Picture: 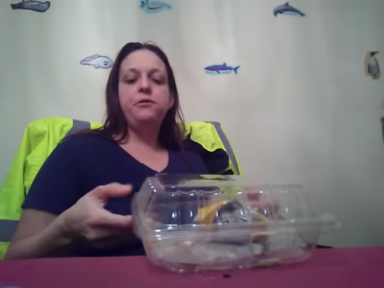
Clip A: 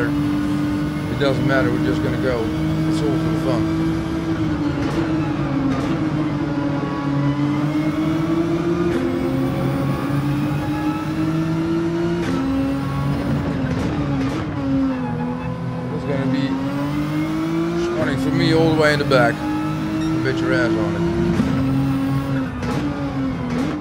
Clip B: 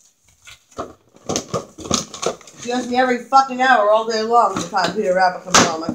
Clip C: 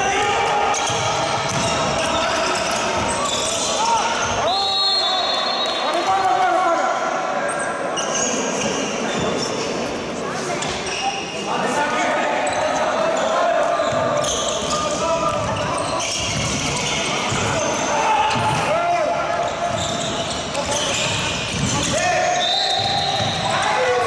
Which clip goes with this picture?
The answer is B